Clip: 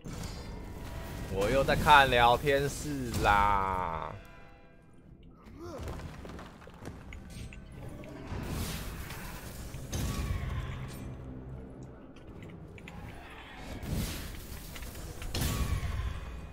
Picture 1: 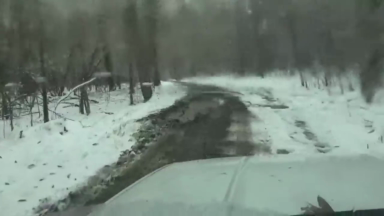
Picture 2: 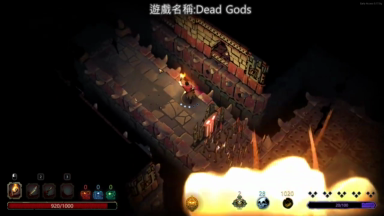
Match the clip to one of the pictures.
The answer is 2